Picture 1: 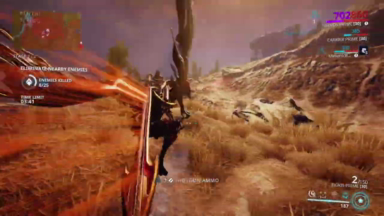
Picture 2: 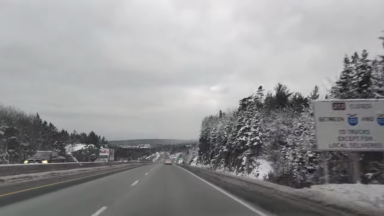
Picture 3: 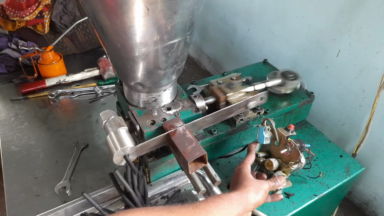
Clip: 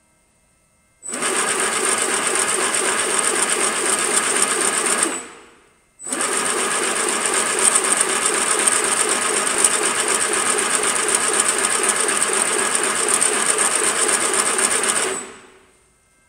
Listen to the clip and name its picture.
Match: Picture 3